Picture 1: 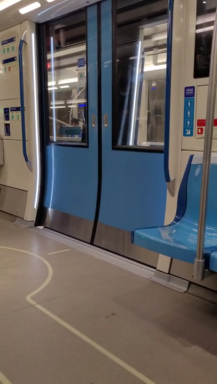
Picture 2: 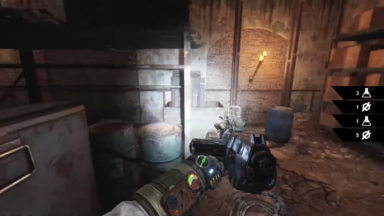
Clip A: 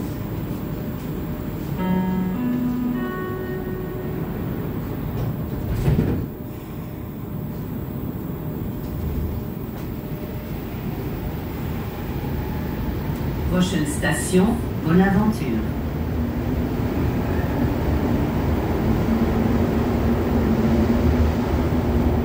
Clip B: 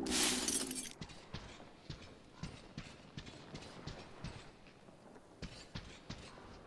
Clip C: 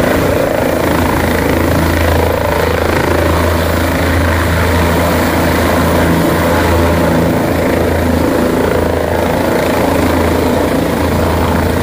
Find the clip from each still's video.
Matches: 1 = A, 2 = B